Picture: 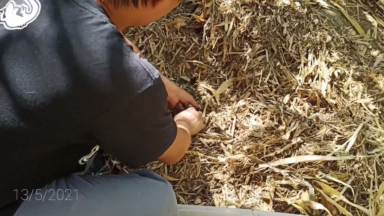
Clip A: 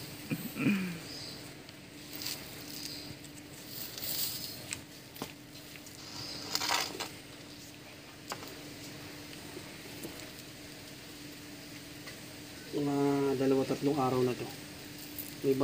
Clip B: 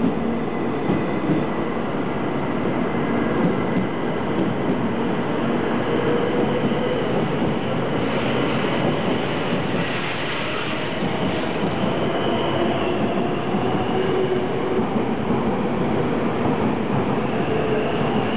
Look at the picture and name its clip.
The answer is A